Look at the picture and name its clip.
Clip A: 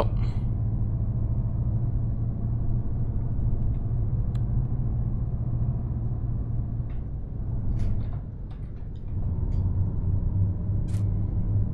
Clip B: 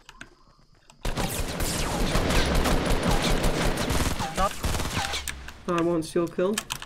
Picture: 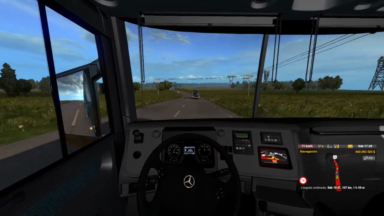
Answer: A